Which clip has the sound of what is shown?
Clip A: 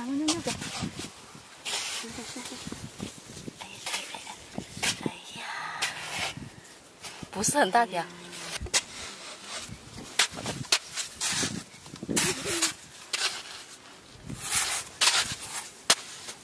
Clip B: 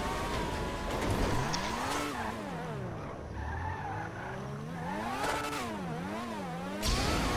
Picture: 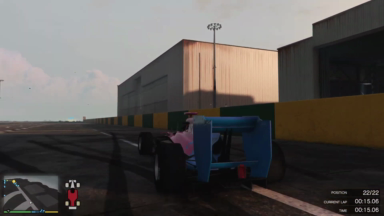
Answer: B